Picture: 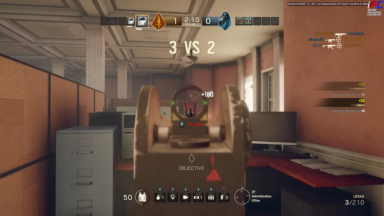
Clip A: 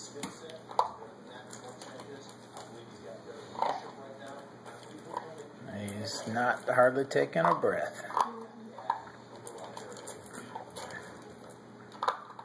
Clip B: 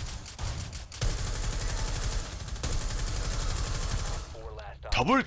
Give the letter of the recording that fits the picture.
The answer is B